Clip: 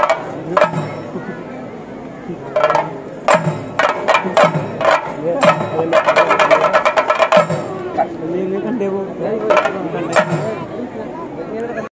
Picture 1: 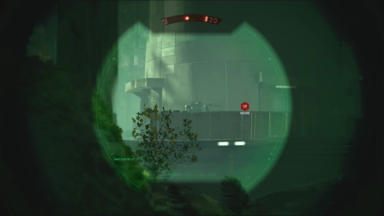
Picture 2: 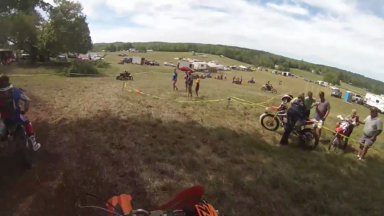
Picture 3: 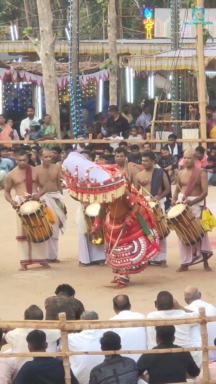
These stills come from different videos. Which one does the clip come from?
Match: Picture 3